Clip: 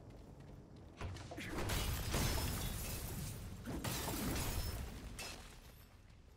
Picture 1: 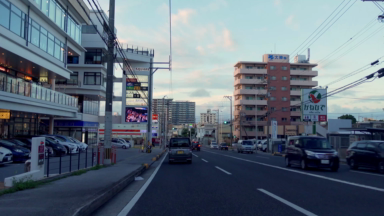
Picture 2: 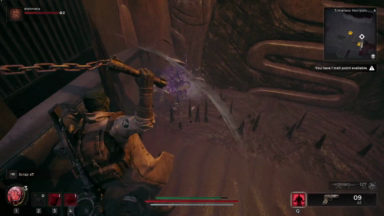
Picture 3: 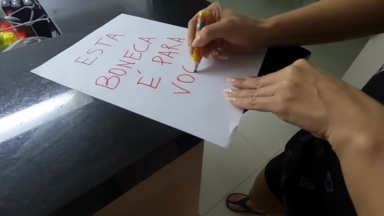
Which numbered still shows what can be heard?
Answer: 2